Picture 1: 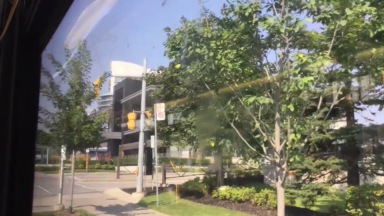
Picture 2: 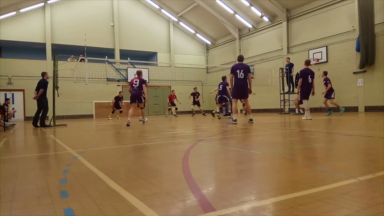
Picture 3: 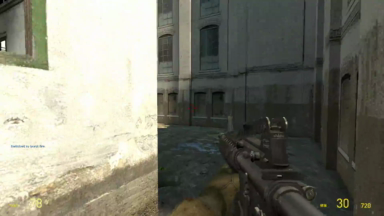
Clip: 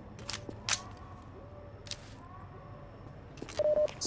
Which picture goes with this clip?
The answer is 3